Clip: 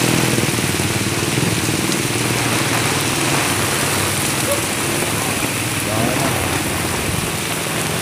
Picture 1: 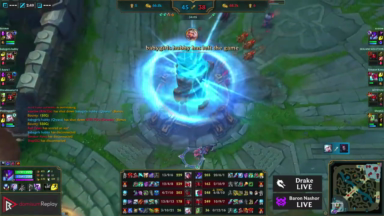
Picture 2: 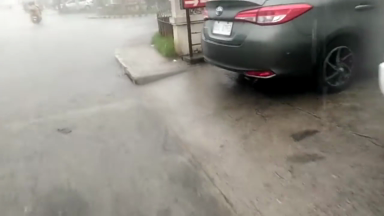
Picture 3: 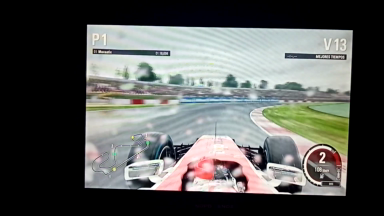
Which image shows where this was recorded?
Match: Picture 2